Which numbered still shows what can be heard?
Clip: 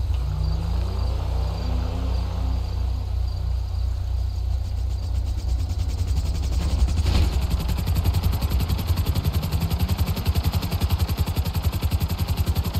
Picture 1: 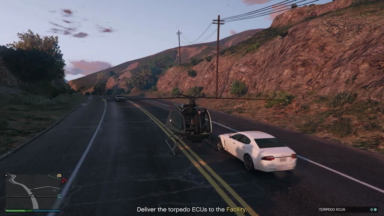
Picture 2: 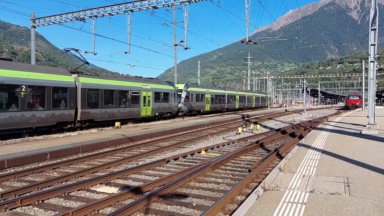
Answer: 1